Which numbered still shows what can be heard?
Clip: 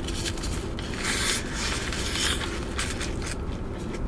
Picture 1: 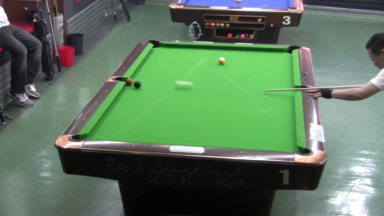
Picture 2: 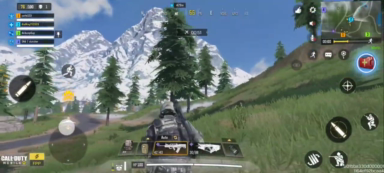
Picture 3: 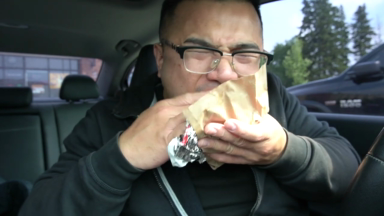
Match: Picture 3